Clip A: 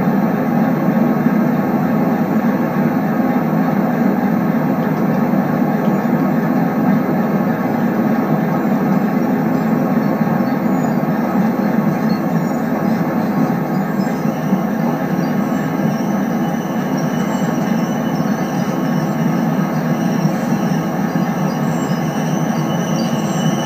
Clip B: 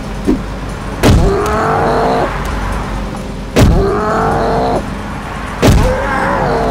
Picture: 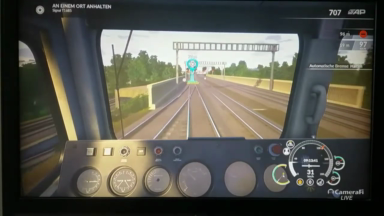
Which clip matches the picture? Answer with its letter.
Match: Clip A